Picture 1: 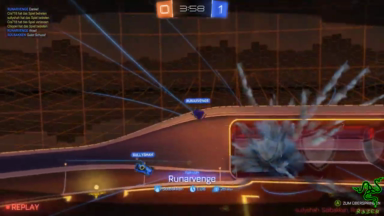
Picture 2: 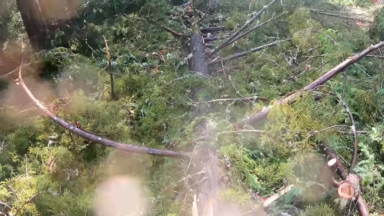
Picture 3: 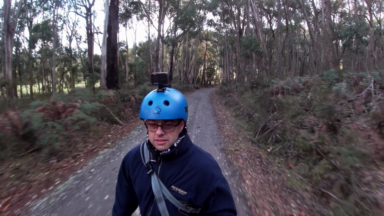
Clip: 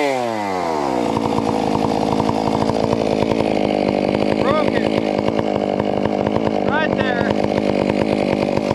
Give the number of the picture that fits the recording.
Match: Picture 2